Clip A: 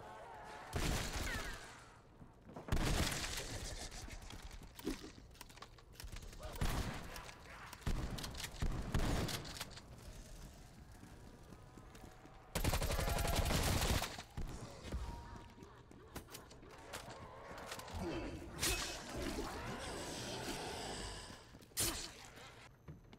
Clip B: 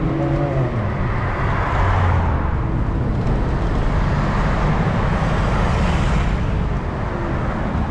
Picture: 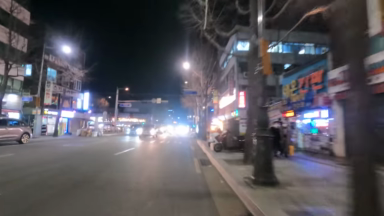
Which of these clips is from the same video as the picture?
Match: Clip B